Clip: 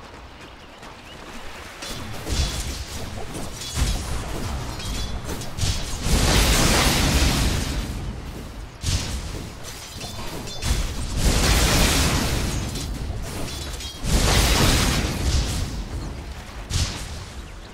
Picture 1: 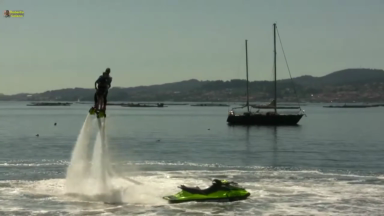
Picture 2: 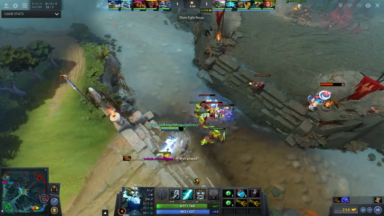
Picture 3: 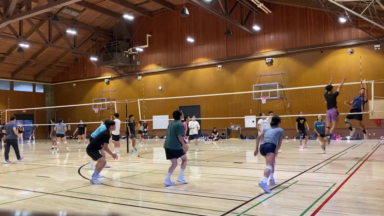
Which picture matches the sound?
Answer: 2